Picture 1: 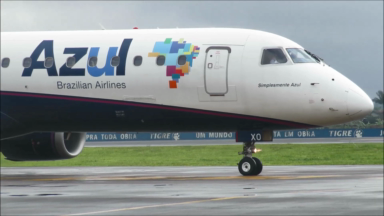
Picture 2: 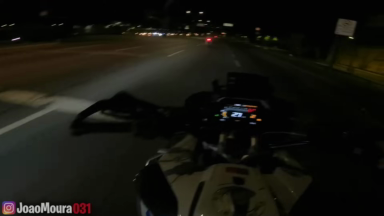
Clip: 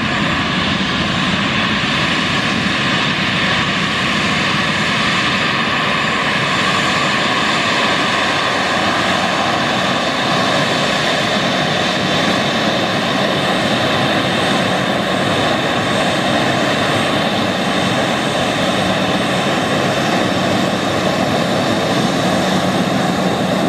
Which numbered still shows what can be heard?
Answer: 1